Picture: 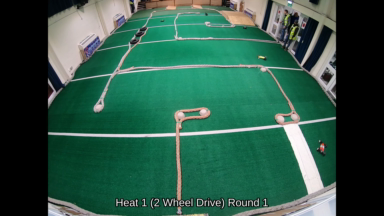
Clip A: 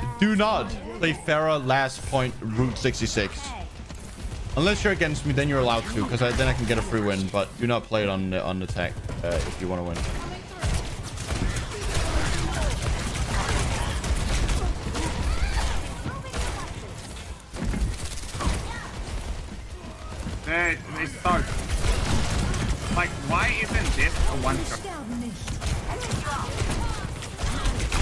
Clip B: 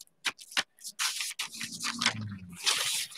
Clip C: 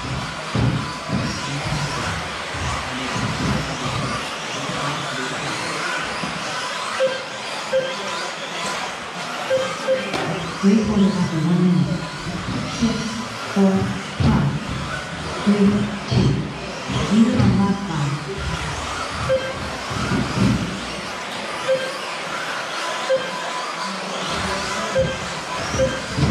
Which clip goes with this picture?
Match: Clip C